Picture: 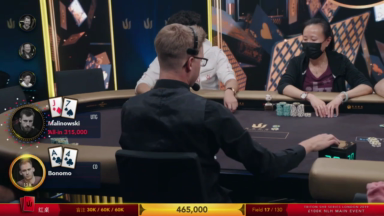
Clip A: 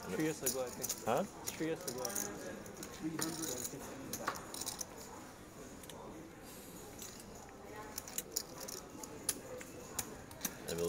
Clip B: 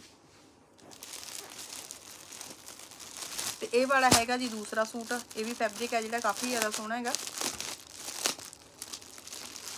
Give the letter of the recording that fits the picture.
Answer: A